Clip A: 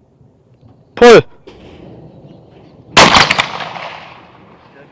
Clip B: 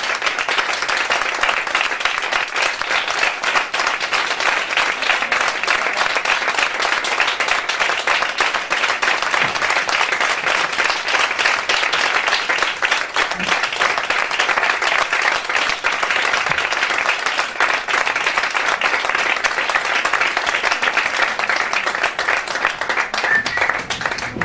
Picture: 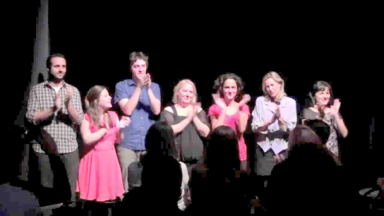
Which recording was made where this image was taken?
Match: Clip B